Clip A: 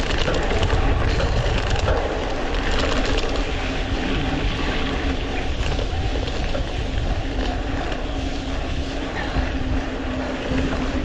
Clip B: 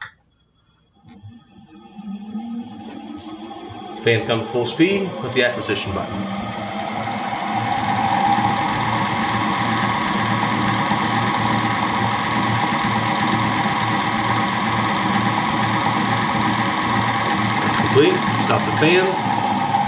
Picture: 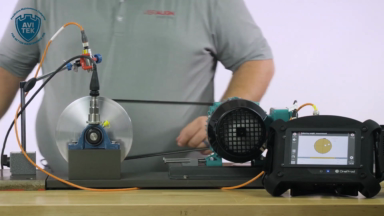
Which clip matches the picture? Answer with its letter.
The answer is B